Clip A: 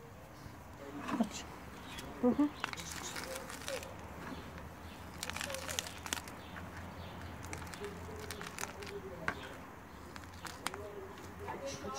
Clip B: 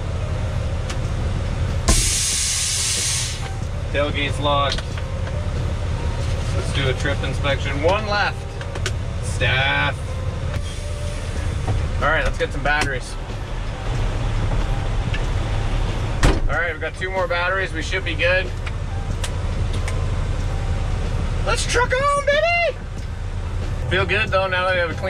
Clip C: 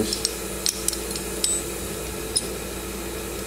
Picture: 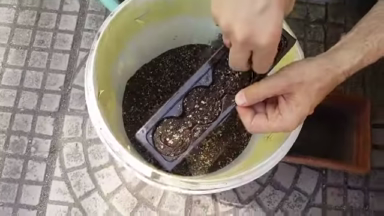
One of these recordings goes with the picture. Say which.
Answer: A